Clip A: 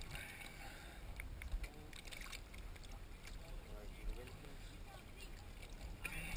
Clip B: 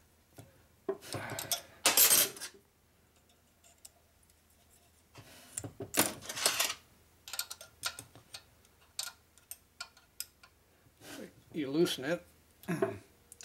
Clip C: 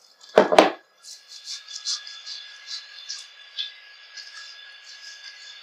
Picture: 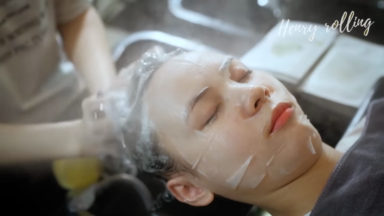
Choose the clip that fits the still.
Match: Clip C